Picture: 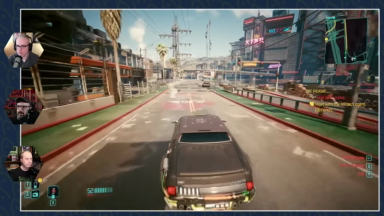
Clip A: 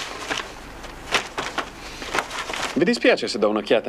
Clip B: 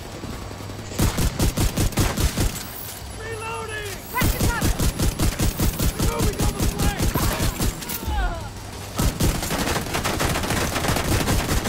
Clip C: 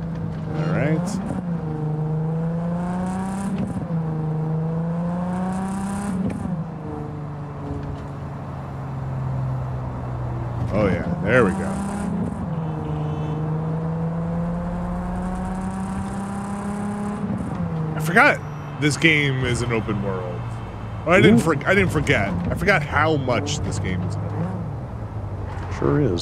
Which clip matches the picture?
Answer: C